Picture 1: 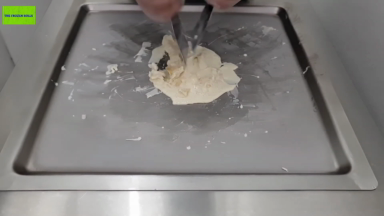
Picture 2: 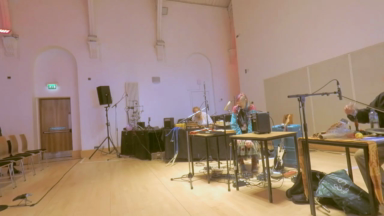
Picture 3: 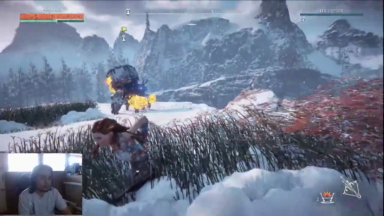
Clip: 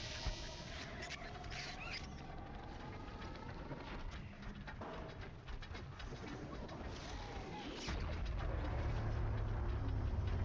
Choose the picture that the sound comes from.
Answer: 3